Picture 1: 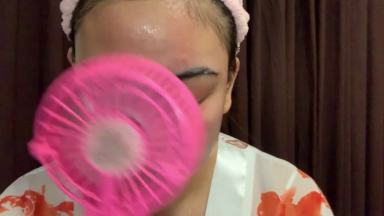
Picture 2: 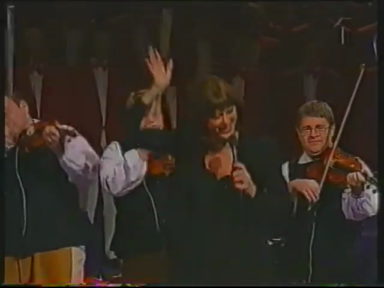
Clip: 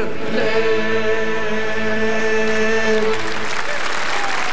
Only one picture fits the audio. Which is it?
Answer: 2